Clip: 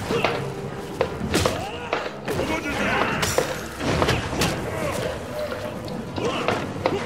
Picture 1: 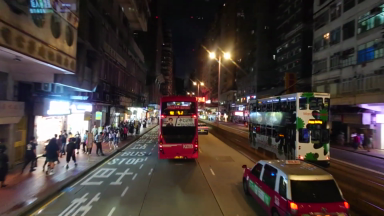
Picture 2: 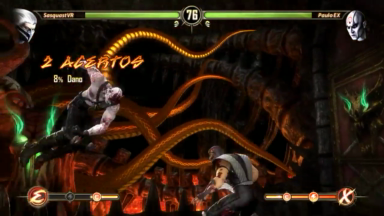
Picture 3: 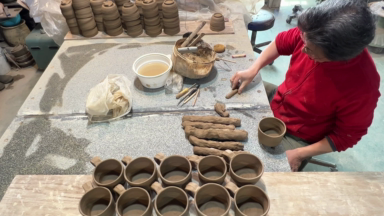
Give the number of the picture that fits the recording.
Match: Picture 2